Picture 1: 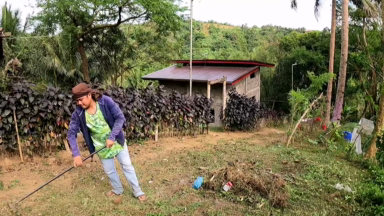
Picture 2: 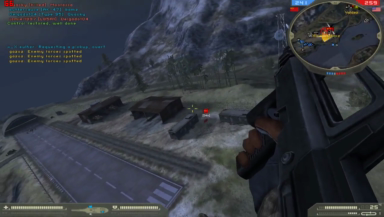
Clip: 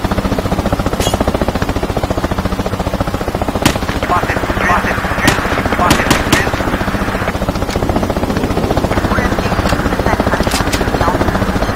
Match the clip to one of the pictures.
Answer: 2